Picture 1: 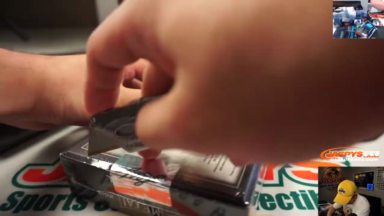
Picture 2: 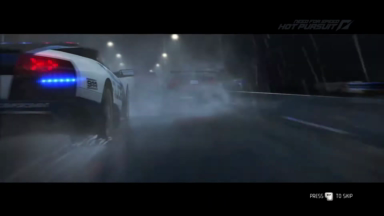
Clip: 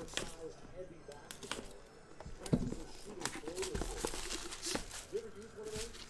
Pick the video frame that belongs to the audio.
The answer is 1